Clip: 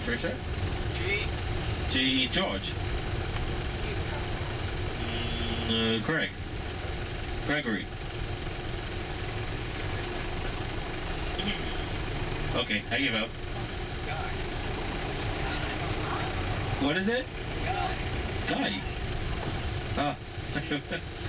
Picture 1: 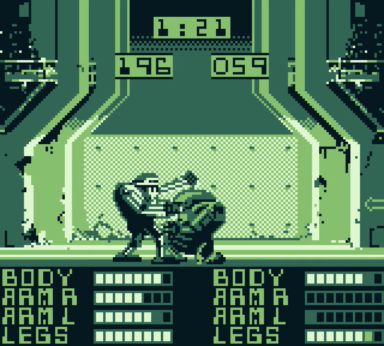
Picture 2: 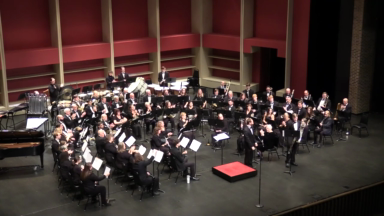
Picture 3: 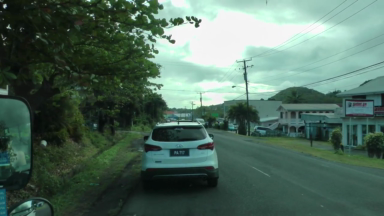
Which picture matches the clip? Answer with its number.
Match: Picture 3